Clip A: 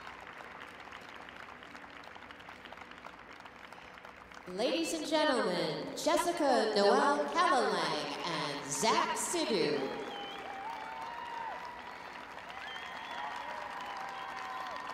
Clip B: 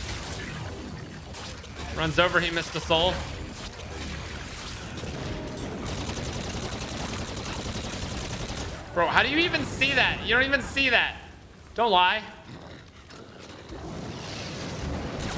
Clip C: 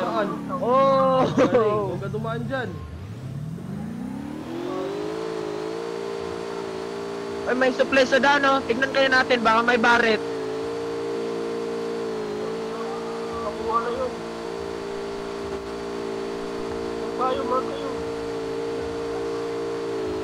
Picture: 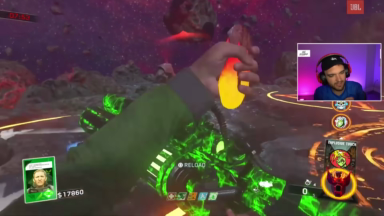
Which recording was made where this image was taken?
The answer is B